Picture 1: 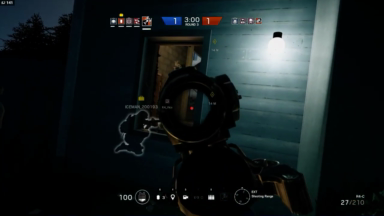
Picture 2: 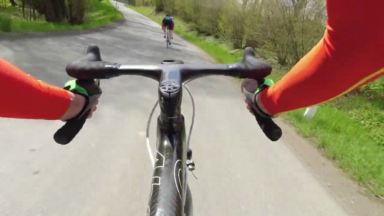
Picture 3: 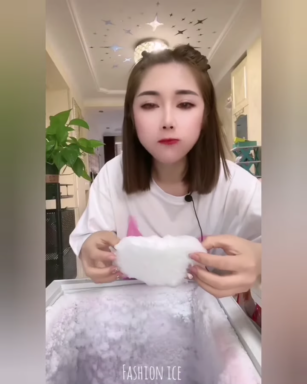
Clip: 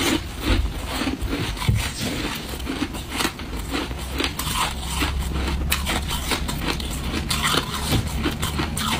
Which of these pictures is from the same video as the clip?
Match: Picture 3